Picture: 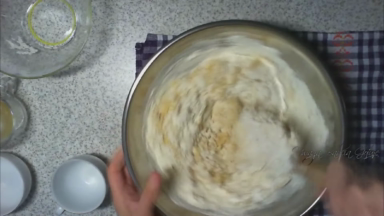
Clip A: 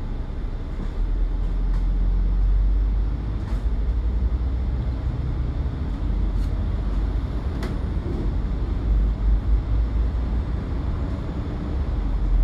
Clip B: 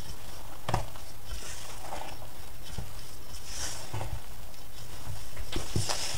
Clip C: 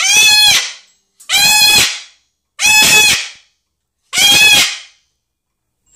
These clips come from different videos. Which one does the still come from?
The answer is B